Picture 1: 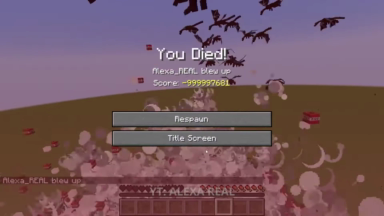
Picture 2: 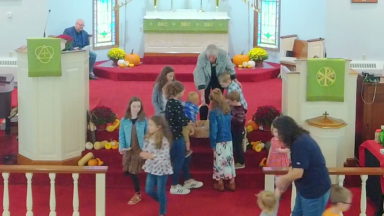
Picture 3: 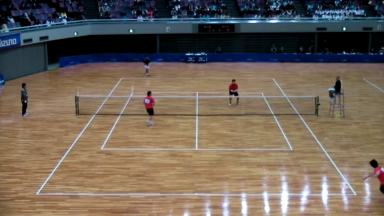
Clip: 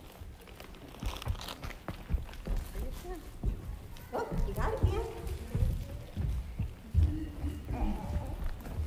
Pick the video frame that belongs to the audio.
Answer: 2